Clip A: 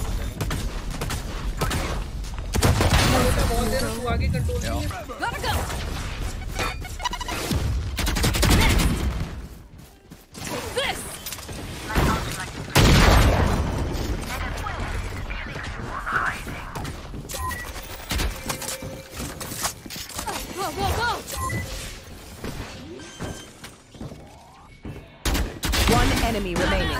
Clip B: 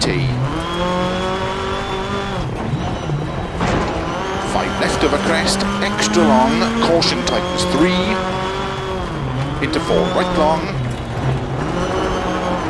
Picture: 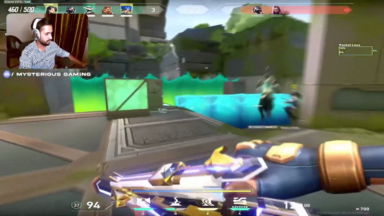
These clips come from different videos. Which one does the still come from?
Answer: A